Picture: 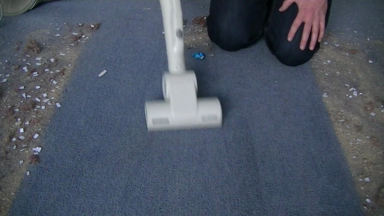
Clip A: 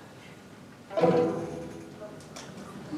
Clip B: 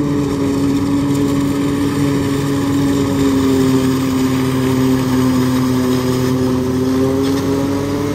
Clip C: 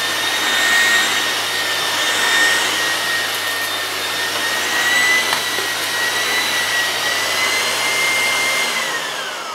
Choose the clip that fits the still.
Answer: C